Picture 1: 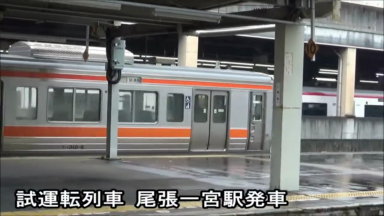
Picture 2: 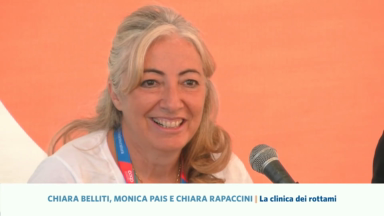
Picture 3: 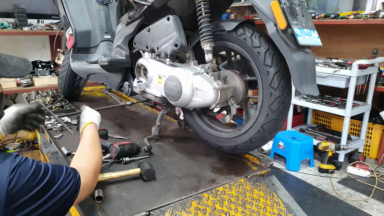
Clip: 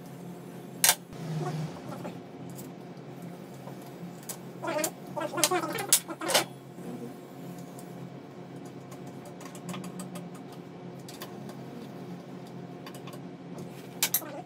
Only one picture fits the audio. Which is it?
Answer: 3